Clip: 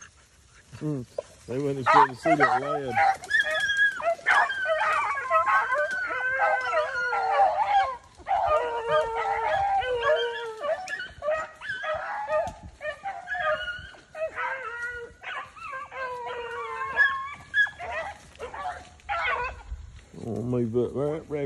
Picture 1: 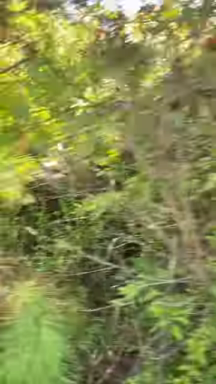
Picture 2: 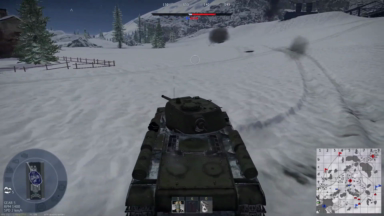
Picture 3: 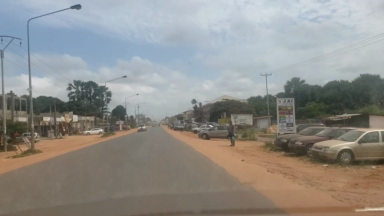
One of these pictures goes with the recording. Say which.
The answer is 1